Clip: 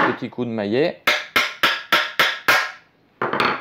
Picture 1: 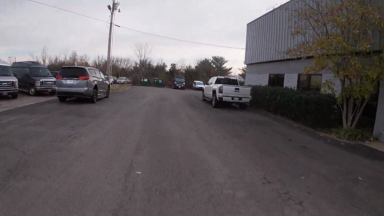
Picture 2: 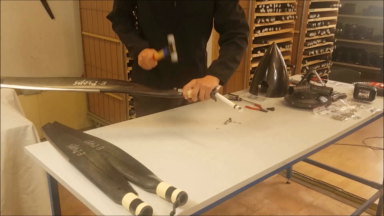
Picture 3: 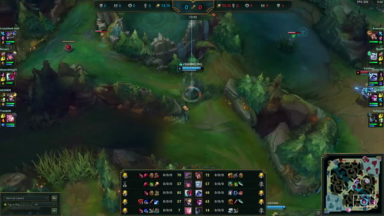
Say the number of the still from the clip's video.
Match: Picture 2